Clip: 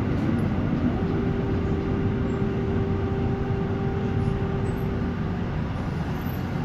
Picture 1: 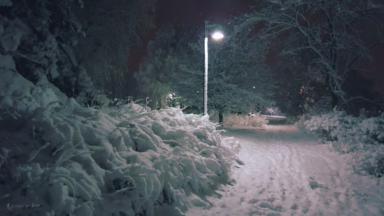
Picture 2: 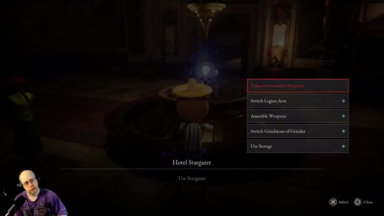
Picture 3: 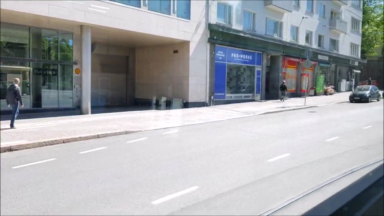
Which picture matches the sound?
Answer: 3